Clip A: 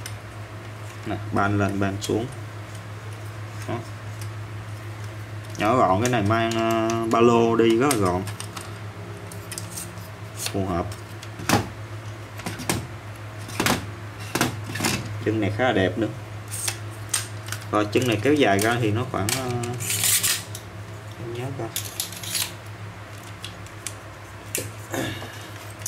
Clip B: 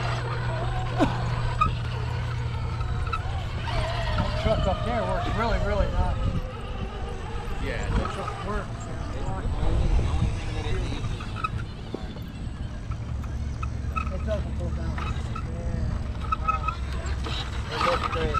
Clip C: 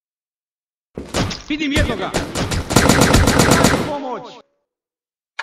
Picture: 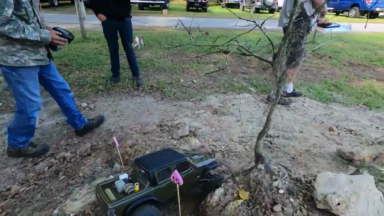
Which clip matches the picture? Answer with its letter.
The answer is B